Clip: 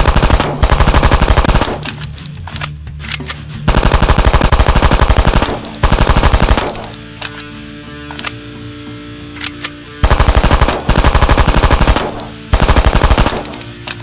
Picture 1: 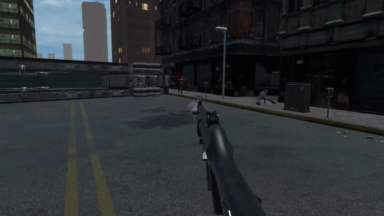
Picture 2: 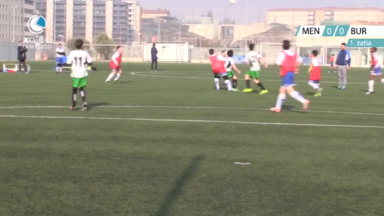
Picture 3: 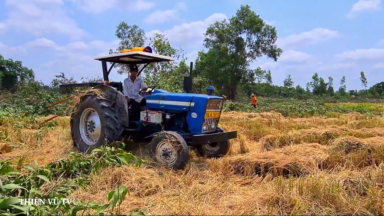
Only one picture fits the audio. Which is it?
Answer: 1